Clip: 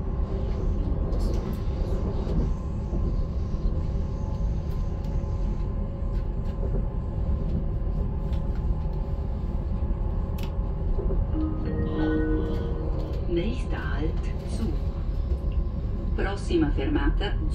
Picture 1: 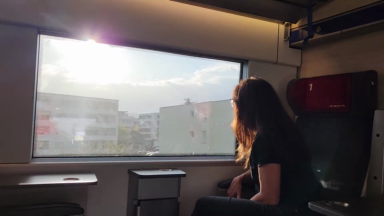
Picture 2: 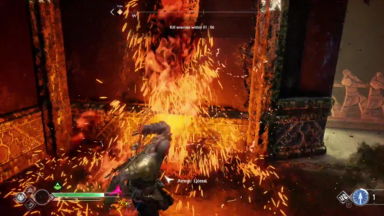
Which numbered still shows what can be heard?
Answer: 1